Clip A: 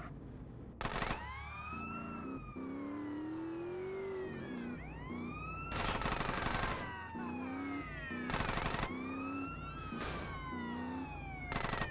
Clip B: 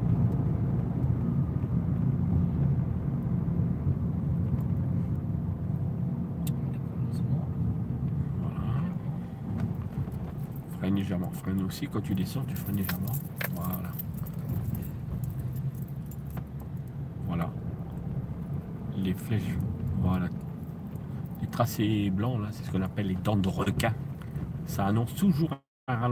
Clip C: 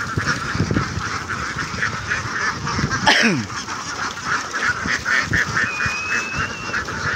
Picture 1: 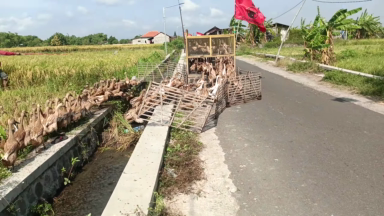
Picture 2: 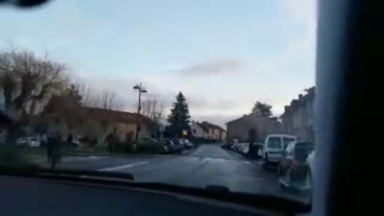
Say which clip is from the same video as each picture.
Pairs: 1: C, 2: B